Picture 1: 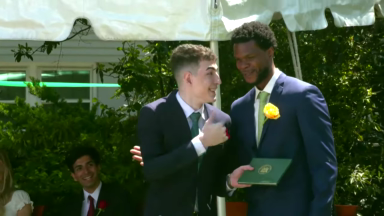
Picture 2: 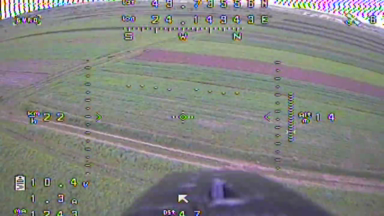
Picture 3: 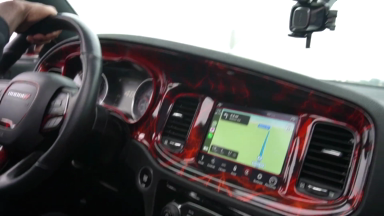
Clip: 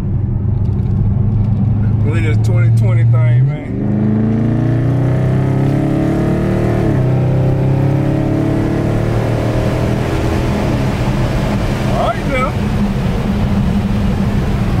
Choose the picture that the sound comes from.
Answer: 3